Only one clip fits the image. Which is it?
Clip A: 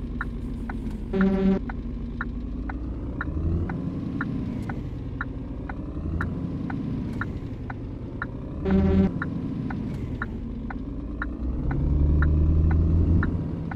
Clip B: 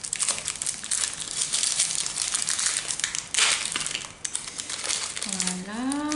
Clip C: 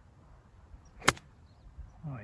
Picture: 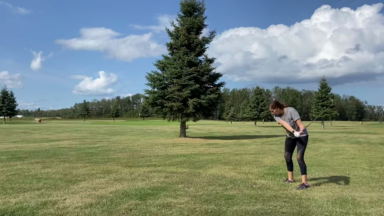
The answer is C